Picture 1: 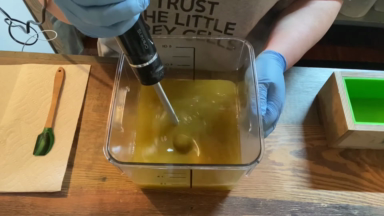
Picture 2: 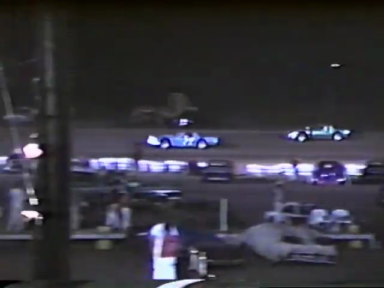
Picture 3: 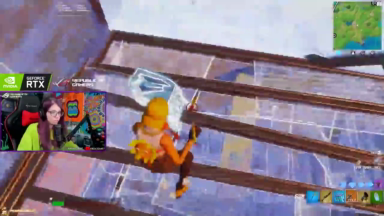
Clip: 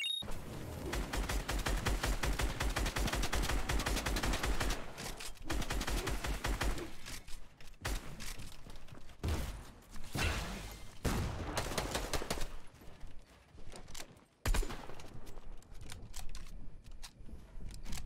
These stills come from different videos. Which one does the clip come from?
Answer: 3